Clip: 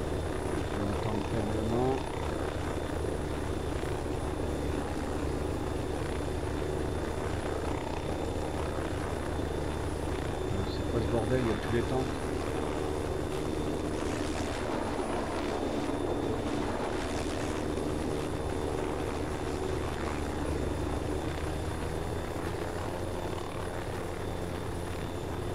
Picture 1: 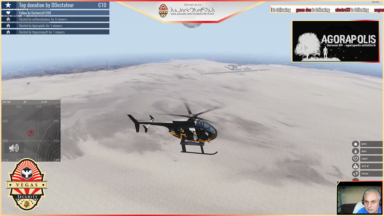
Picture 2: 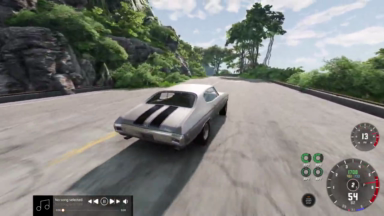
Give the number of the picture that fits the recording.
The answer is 1